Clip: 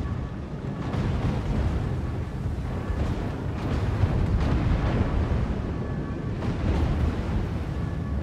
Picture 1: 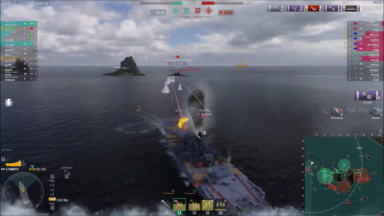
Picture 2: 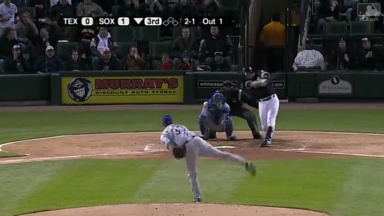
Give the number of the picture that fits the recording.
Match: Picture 1